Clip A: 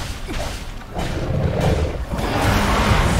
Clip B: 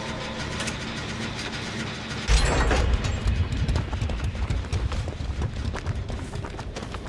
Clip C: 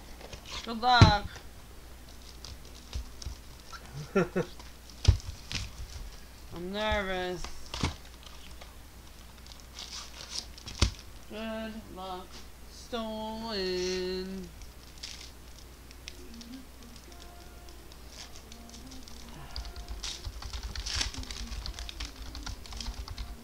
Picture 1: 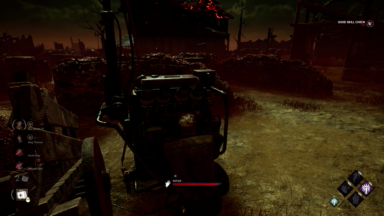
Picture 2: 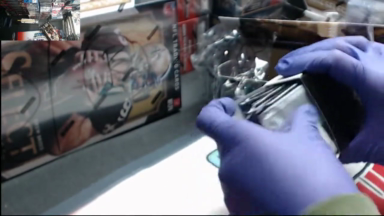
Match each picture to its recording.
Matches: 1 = B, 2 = C